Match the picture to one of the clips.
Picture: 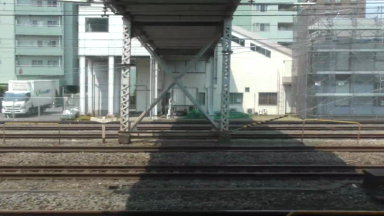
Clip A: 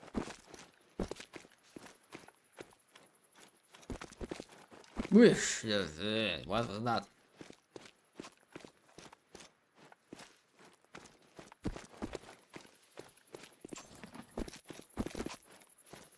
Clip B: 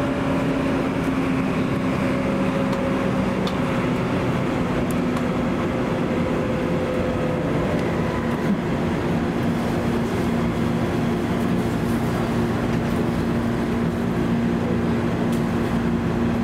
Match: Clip B